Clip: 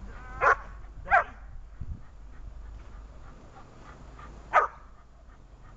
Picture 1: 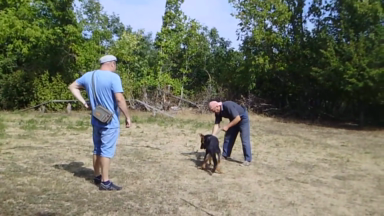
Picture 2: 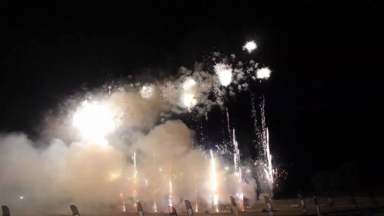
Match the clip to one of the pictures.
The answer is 1